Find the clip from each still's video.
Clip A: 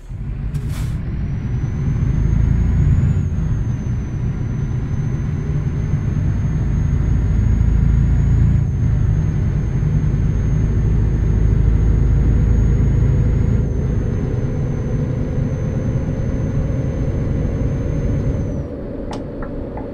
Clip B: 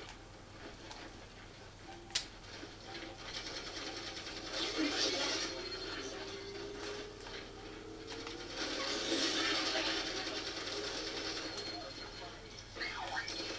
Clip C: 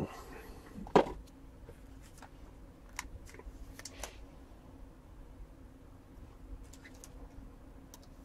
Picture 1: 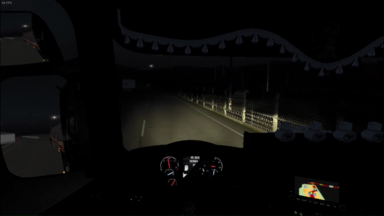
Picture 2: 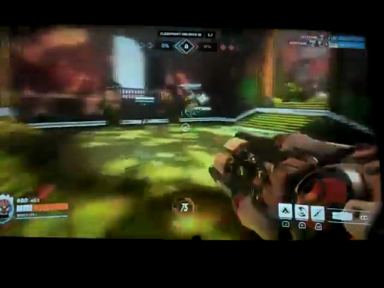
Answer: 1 A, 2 B